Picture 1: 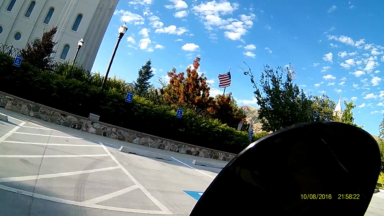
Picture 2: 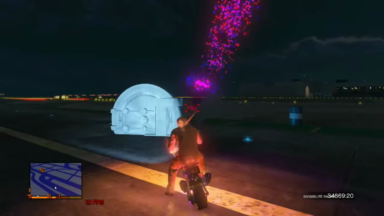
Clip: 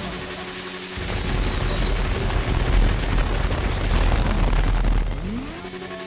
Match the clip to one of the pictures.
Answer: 2